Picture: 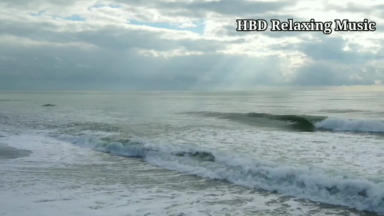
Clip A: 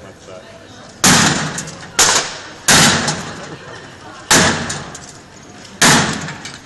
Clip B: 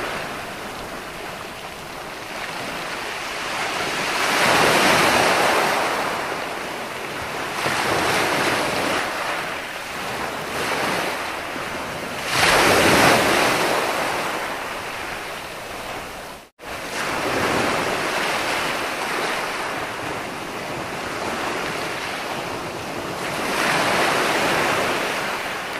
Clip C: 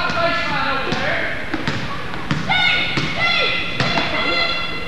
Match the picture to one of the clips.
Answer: B